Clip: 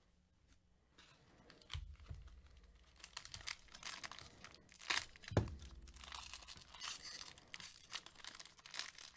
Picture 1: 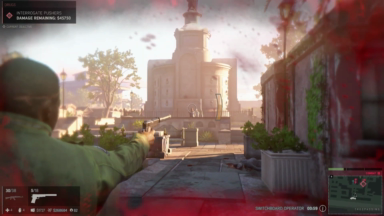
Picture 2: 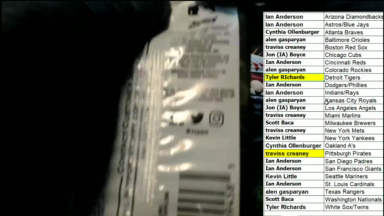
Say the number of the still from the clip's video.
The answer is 2